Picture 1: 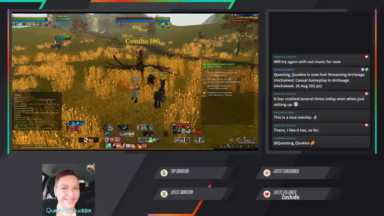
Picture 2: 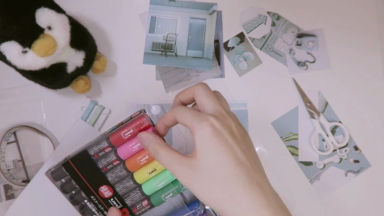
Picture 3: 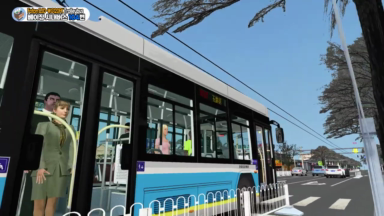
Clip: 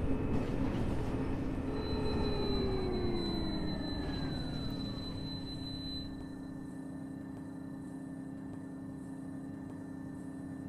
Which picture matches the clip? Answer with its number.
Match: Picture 3